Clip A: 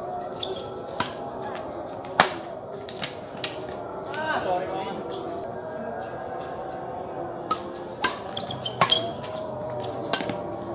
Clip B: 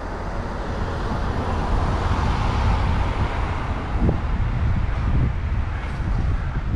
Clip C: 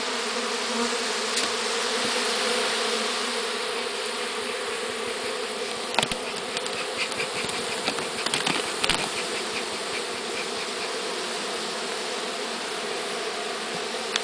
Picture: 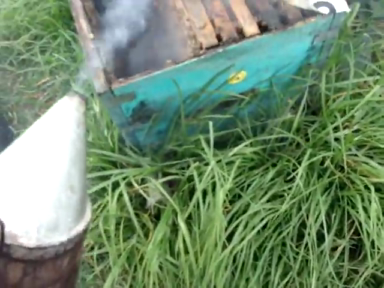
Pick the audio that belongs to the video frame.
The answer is C